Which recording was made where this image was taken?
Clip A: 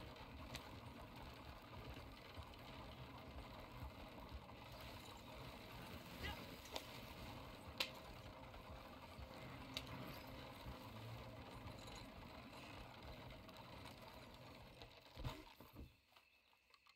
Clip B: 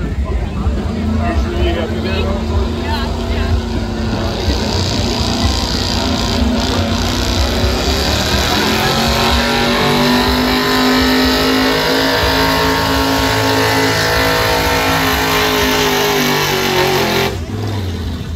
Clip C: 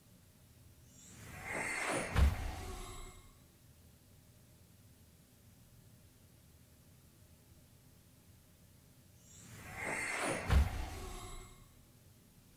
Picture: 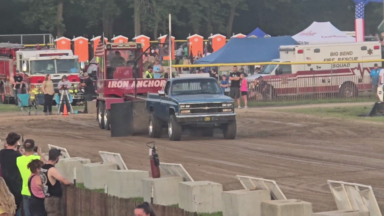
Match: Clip B